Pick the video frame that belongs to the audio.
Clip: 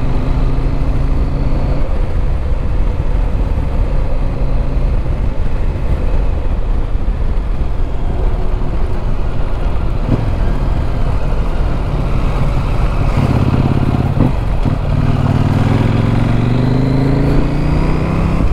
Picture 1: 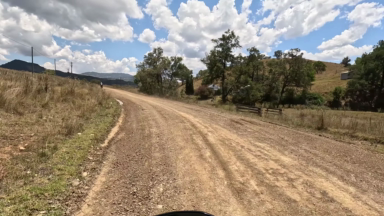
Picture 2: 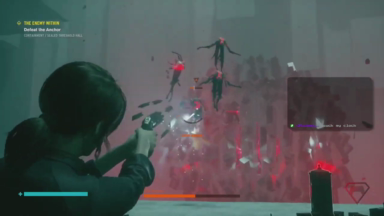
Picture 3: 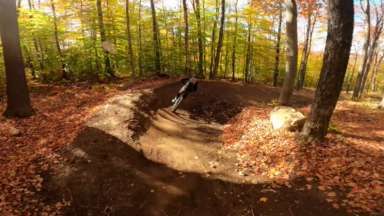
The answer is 1